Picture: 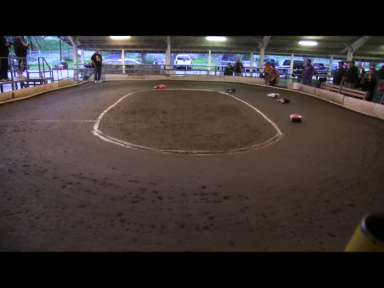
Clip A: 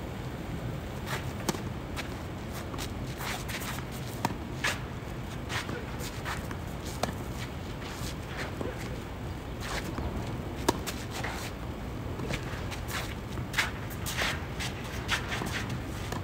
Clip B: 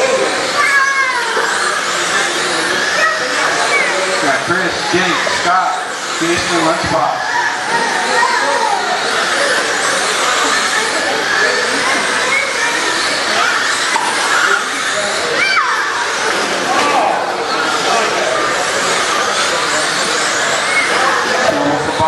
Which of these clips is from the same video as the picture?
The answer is B